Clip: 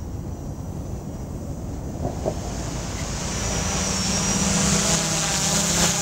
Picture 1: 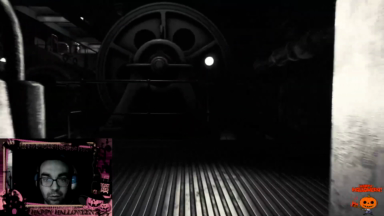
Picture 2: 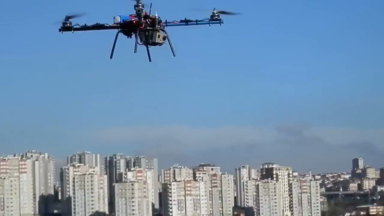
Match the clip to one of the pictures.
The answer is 2